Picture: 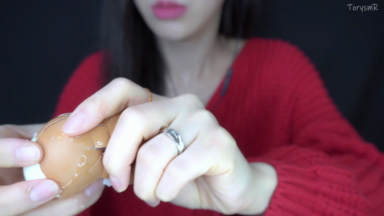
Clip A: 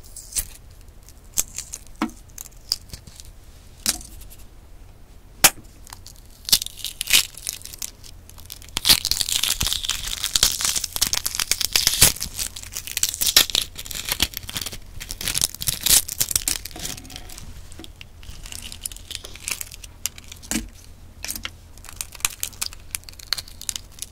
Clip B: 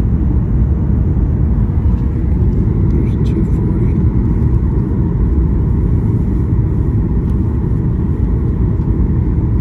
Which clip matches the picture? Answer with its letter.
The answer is A